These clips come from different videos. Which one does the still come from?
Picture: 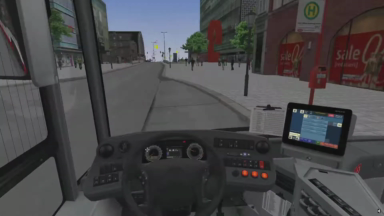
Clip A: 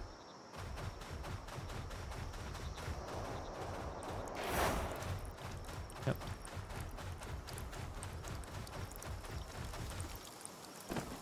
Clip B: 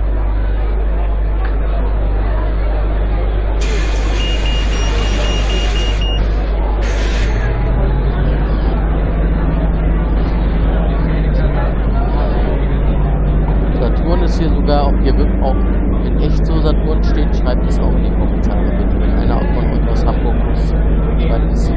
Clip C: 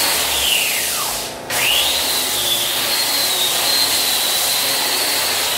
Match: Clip B